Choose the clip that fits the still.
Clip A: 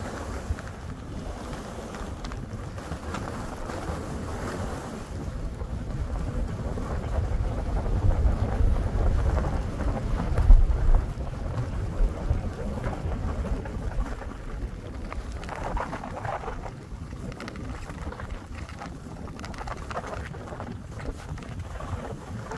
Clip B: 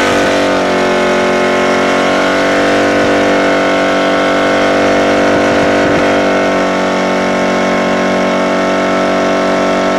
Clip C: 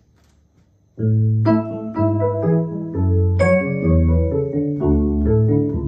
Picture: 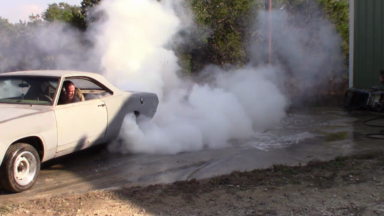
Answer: B